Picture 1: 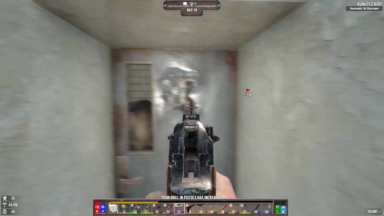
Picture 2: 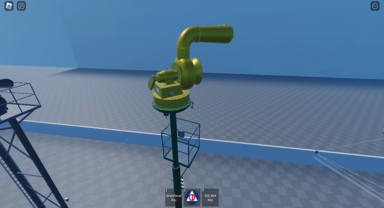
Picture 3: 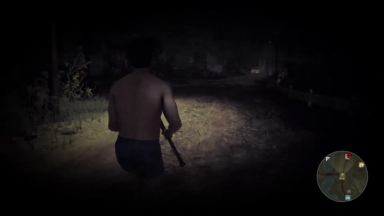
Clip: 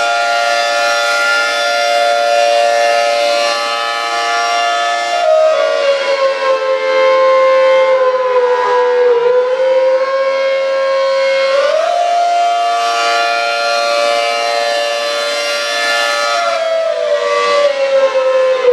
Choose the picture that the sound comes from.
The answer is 2